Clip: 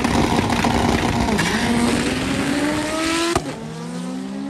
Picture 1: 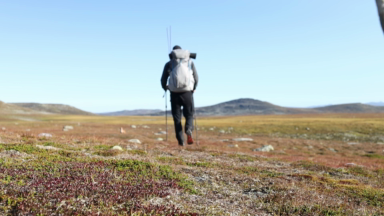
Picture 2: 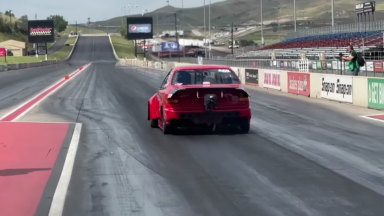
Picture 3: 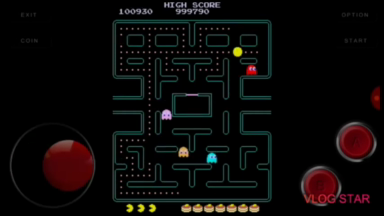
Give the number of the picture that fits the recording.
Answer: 2